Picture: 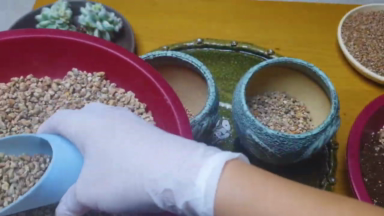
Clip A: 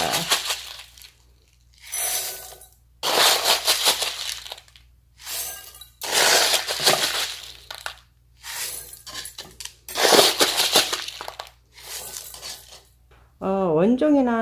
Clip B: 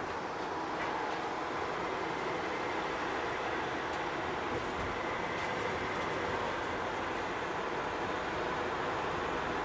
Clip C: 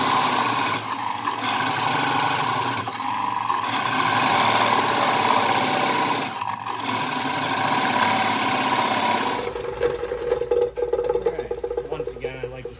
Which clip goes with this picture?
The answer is A